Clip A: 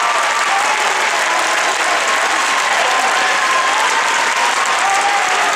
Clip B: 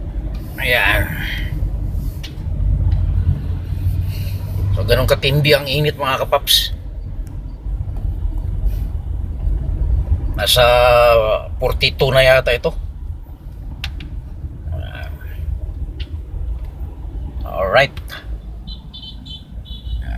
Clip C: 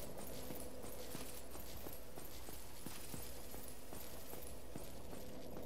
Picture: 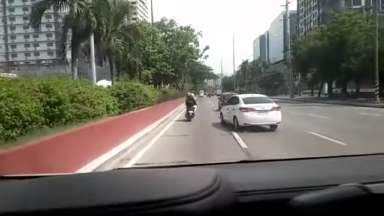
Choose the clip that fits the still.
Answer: B